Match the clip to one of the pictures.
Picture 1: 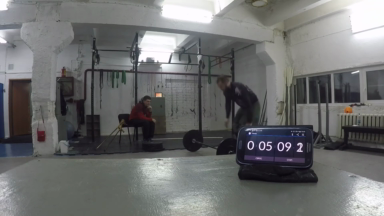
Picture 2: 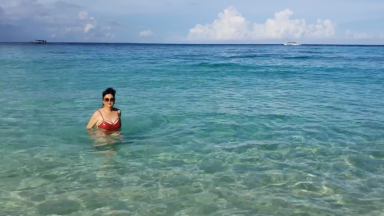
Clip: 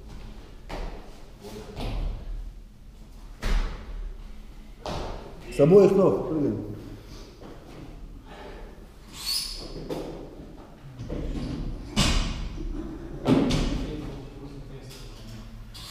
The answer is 1